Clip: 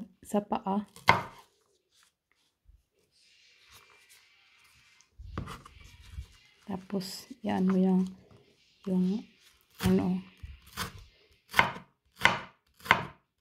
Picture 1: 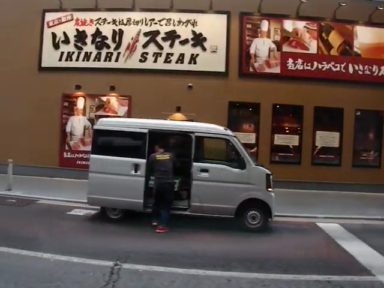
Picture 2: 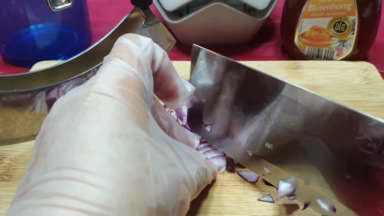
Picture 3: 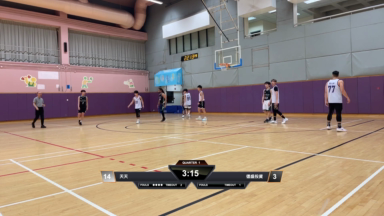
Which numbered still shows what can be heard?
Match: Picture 2